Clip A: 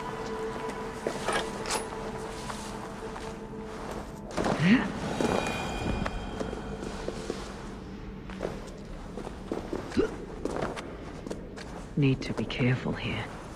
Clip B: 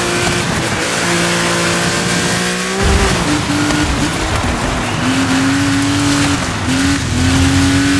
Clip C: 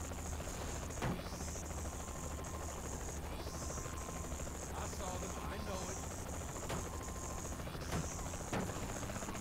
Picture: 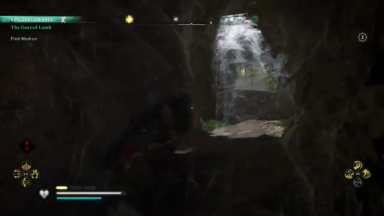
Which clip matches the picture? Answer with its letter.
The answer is A